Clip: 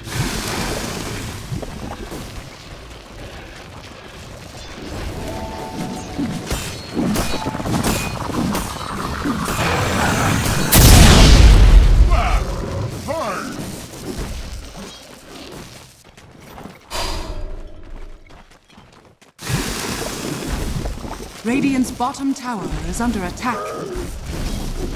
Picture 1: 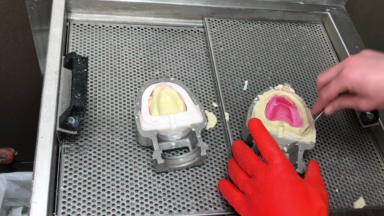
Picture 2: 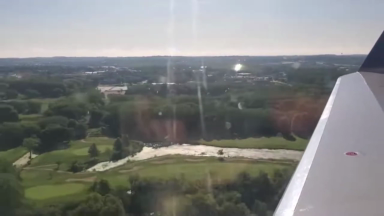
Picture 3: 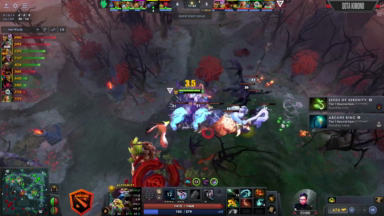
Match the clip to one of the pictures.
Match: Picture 3